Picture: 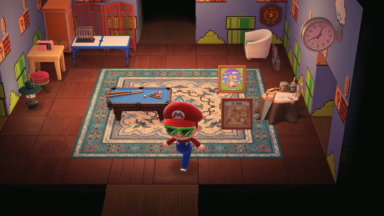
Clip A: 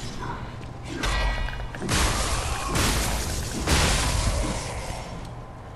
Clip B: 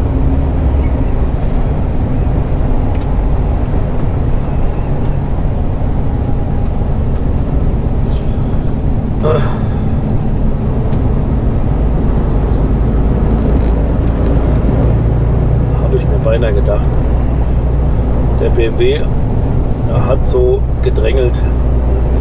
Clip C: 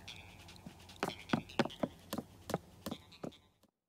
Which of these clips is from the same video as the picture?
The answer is C